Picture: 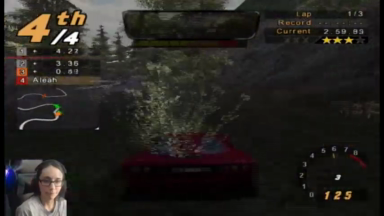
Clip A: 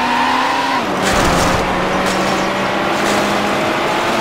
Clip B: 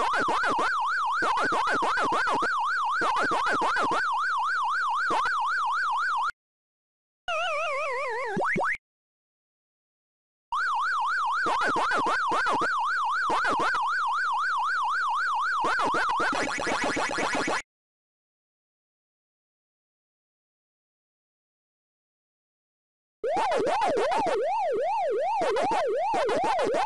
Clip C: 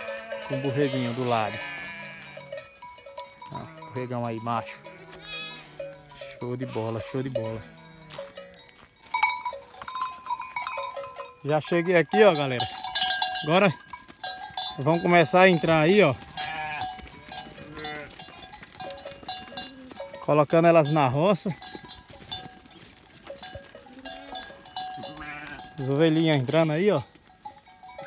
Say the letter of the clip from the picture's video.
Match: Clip A